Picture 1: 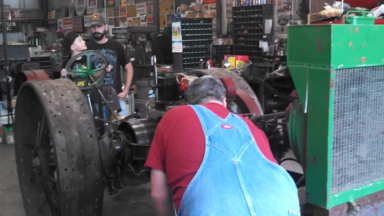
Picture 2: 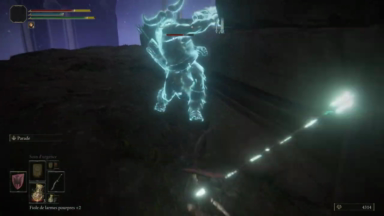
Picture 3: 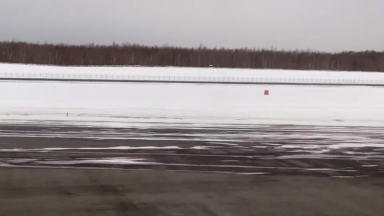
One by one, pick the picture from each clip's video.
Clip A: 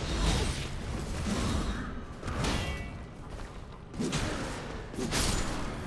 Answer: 2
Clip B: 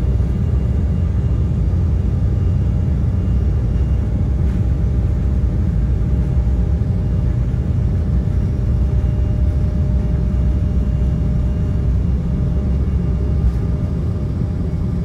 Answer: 3